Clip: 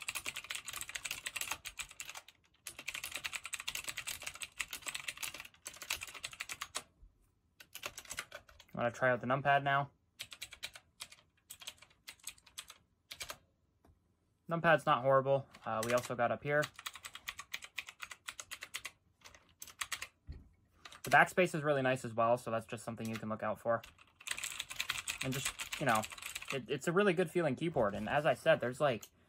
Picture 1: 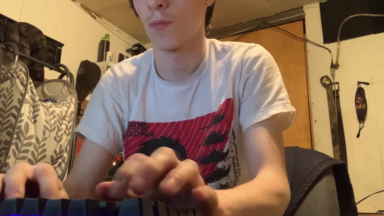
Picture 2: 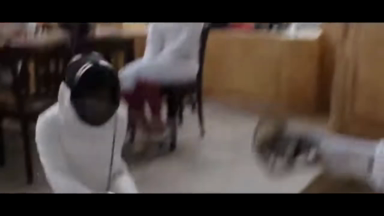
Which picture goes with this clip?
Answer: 1